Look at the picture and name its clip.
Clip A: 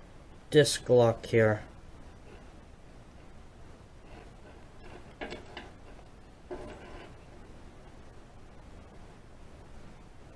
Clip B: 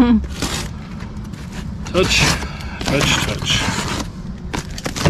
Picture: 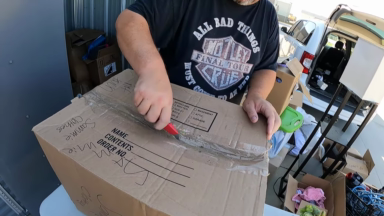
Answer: B